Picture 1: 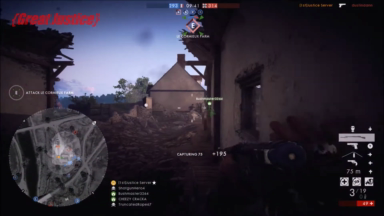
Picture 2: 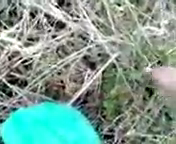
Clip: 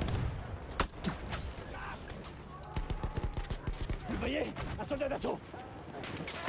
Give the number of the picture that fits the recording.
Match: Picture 1